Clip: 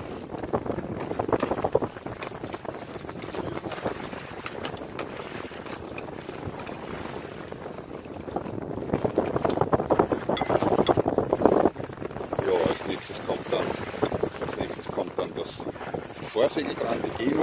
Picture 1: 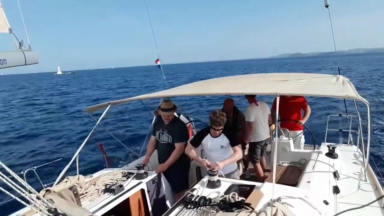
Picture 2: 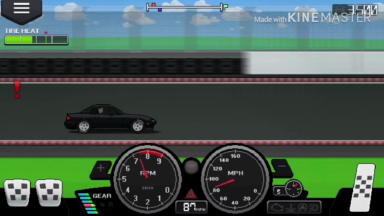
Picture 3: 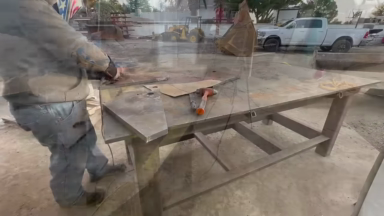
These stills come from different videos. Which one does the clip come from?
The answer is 1